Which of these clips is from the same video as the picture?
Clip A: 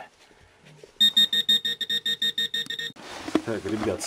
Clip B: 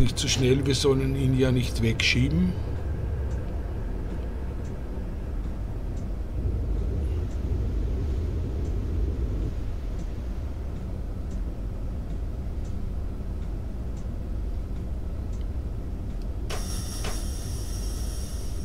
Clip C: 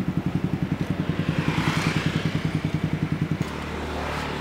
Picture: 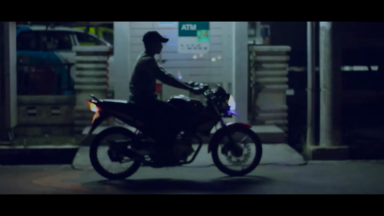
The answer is C